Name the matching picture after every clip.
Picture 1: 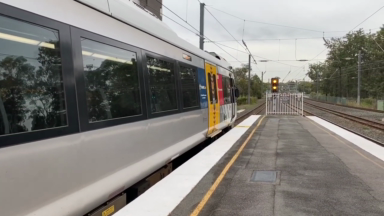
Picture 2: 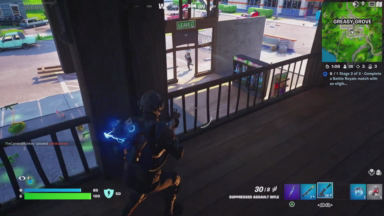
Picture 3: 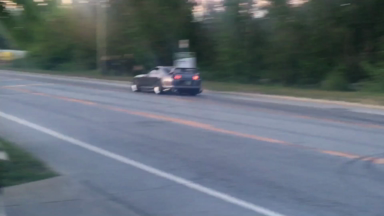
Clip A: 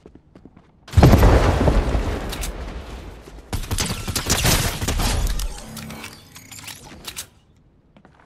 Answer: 2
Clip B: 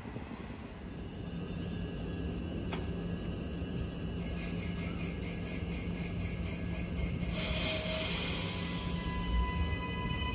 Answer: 1